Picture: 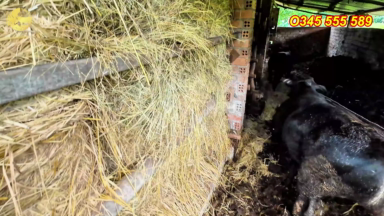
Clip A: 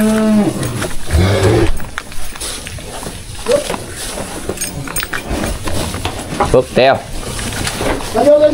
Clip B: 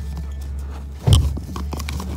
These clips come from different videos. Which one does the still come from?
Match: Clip A